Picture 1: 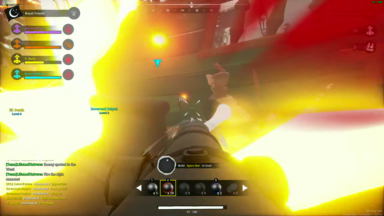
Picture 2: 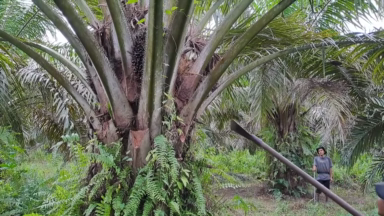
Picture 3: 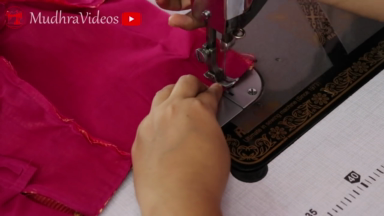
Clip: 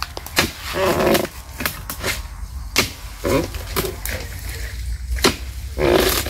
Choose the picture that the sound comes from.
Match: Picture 2